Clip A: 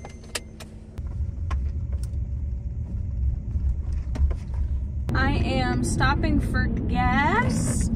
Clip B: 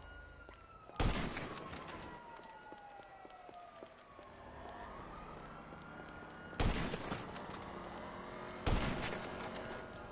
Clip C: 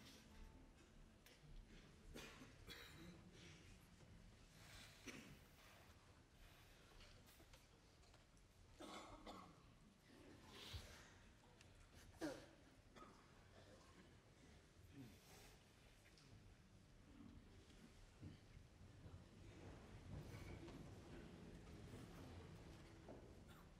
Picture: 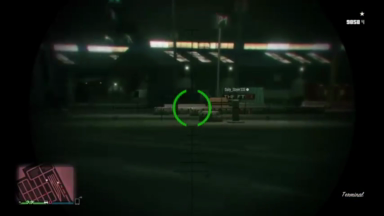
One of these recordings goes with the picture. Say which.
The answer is B